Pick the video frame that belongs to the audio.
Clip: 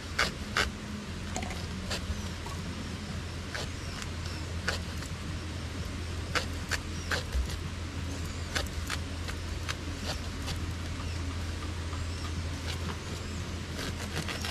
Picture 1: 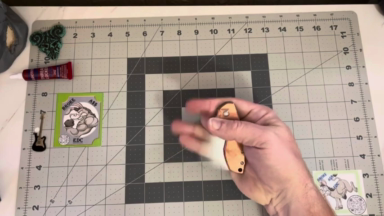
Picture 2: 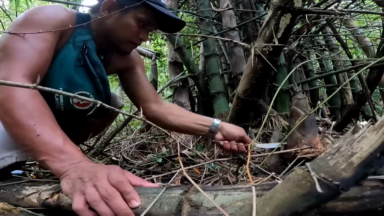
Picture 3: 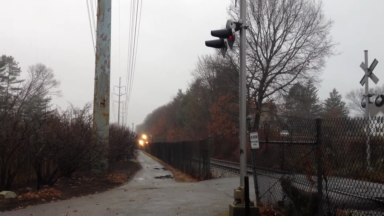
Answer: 2